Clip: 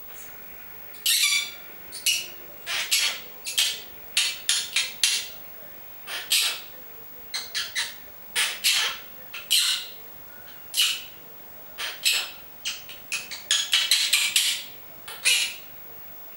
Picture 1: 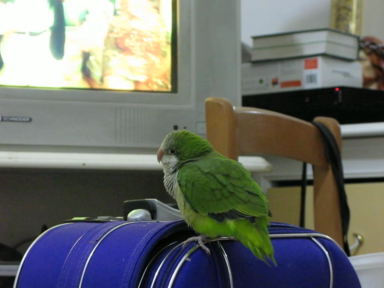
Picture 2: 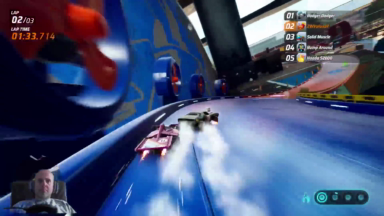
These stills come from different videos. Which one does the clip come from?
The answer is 1